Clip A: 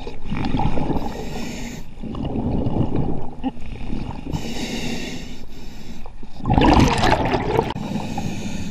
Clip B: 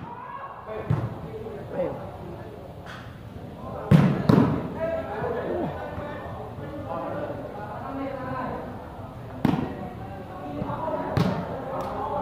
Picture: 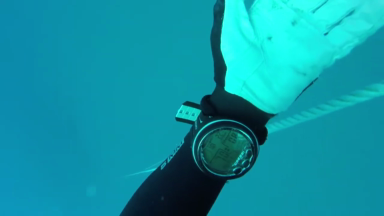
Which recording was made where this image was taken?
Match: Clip A